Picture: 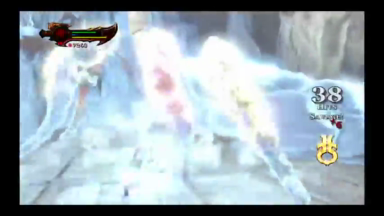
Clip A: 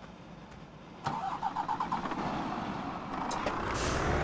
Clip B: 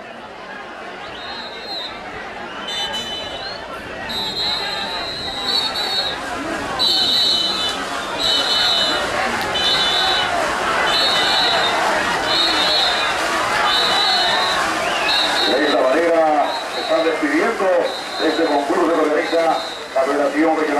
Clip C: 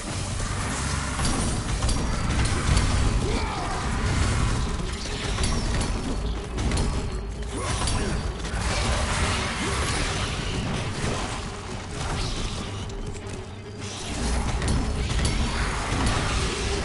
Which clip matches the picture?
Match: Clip C